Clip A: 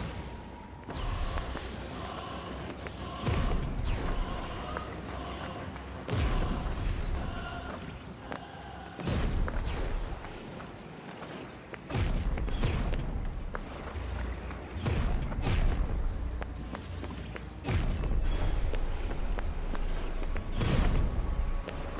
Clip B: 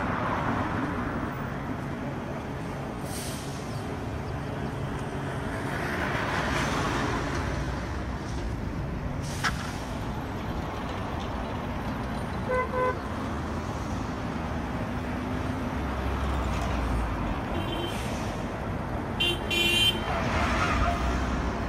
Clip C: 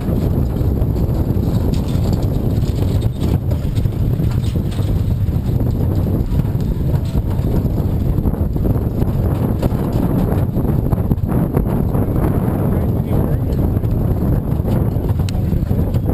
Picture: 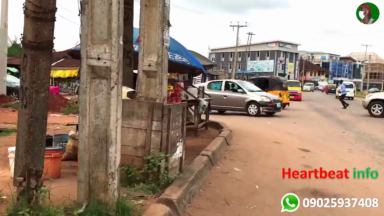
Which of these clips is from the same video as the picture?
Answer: B